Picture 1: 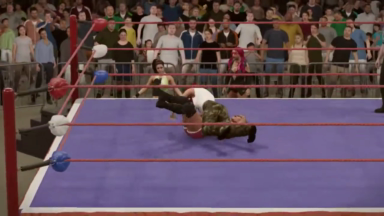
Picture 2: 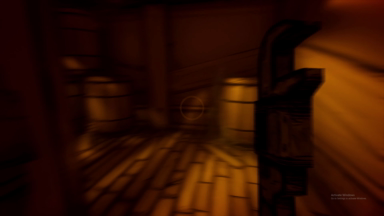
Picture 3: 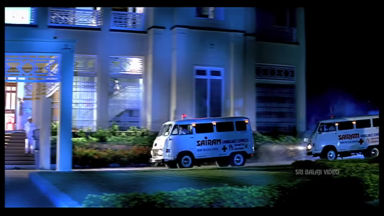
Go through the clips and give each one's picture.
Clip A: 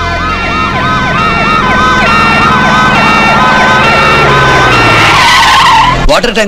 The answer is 3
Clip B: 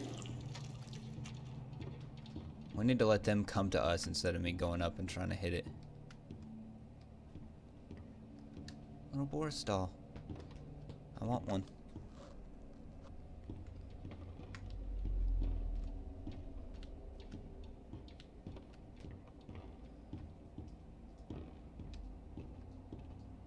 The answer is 2